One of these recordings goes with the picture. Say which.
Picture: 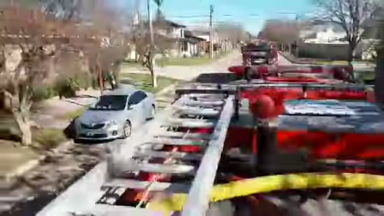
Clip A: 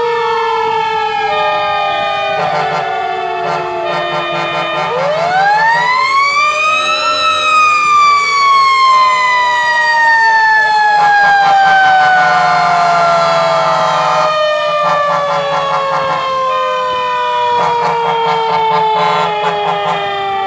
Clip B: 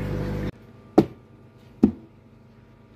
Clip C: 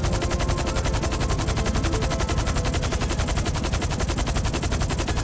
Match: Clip A